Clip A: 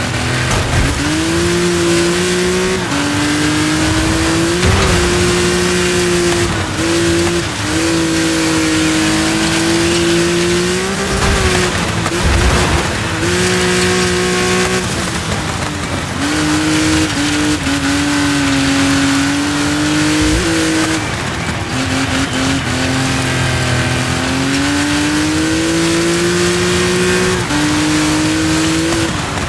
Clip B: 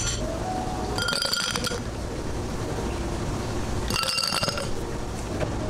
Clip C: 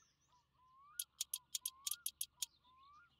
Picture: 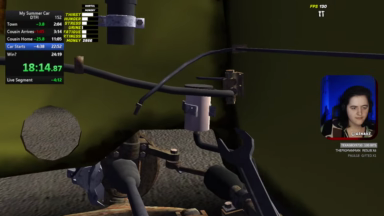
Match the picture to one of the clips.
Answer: C